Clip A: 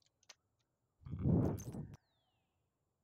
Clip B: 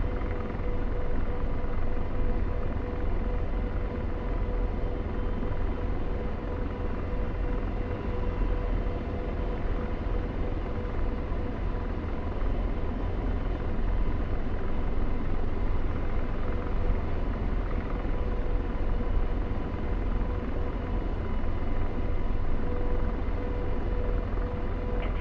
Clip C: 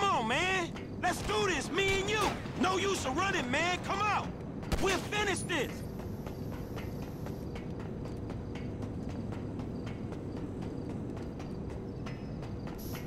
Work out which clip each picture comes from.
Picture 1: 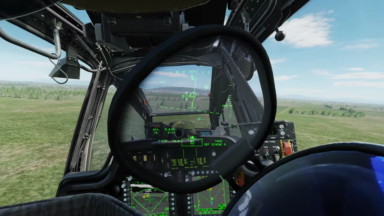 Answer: B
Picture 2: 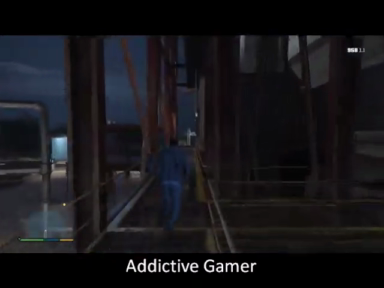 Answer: C